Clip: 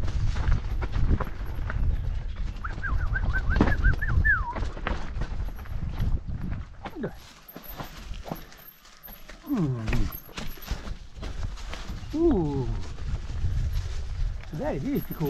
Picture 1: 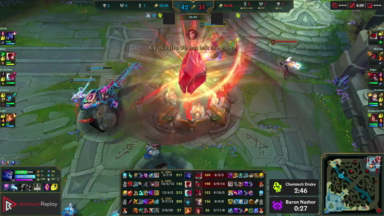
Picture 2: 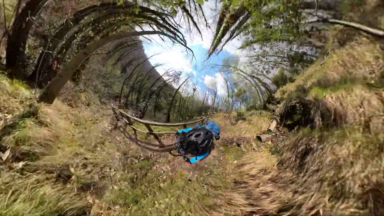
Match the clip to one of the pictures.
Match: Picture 2